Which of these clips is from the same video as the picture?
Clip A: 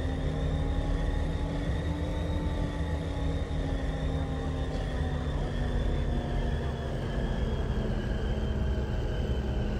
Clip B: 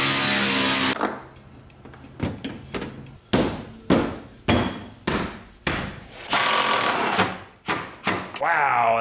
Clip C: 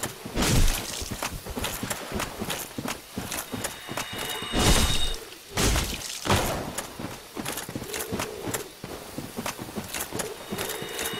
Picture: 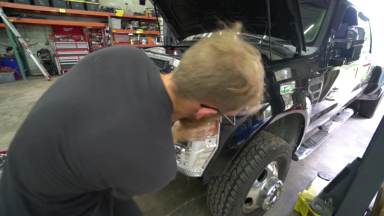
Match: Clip B